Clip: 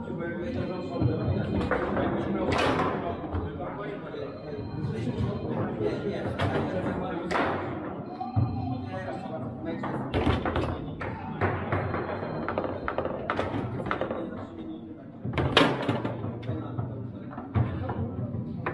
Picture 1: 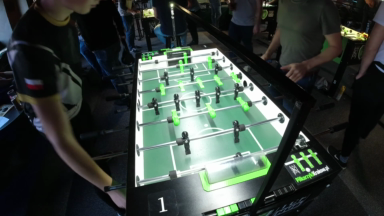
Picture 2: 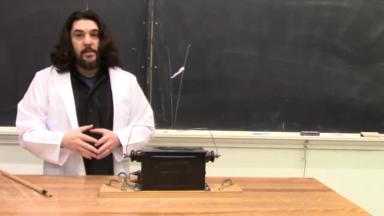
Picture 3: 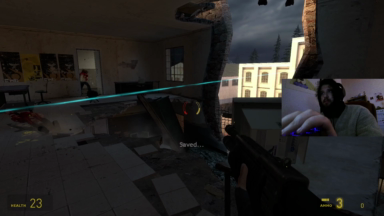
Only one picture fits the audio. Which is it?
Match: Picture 1